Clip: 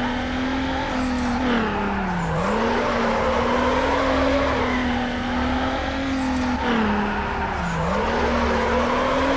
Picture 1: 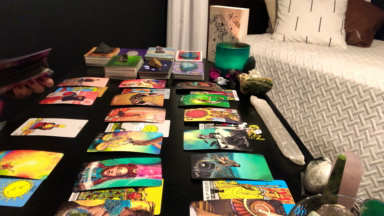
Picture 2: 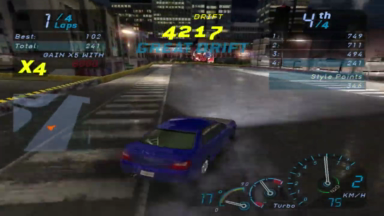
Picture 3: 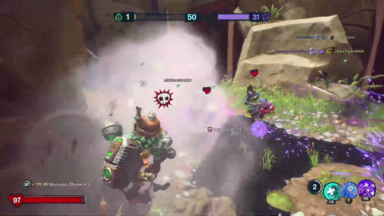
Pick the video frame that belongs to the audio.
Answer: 2